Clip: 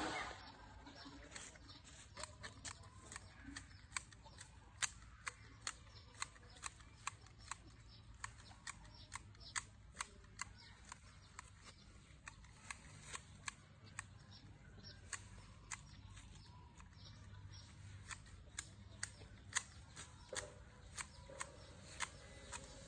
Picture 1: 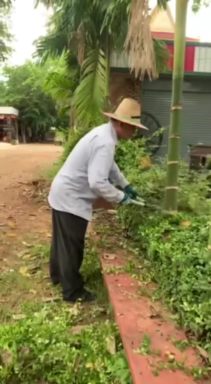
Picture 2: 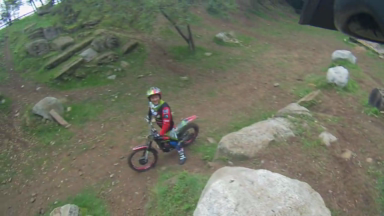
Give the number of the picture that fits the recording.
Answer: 1